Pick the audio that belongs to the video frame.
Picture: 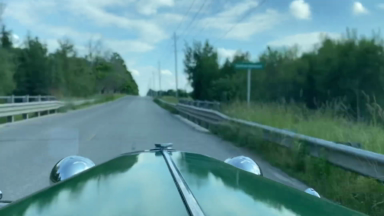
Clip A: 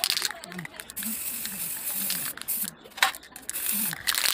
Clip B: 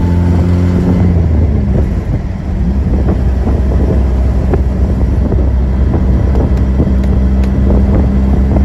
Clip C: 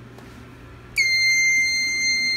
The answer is B